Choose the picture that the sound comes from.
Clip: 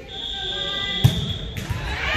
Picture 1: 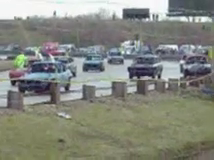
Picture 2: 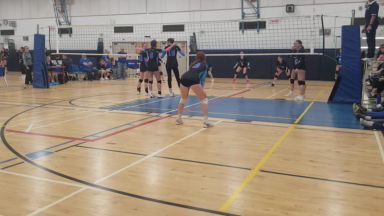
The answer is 2